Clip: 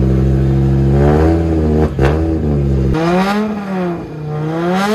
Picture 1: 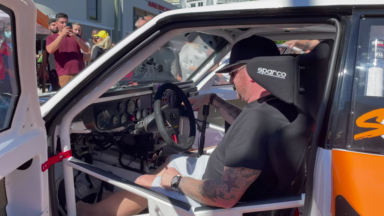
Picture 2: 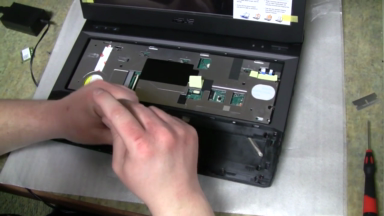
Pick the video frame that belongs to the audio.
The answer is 1